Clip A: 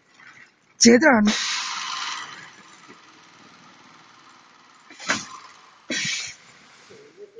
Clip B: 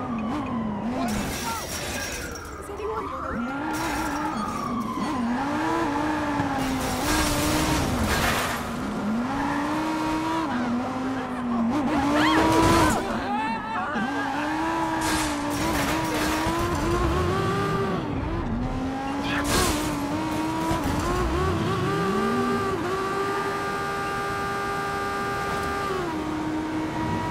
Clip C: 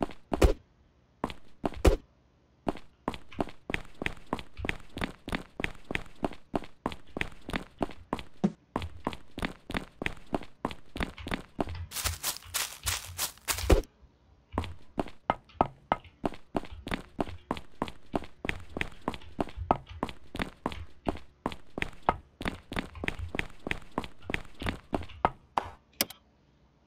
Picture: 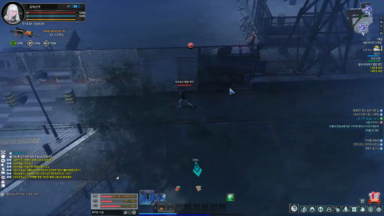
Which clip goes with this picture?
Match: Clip C